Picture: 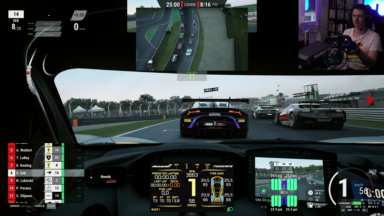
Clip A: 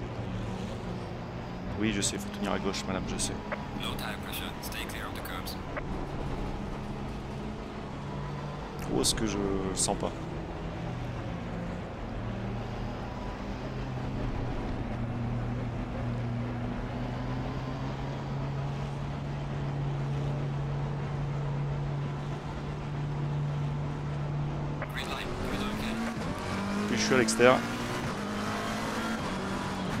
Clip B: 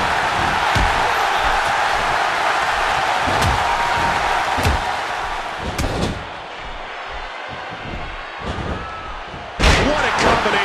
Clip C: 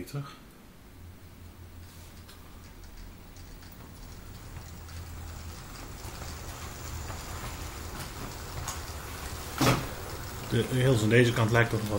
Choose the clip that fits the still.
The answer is A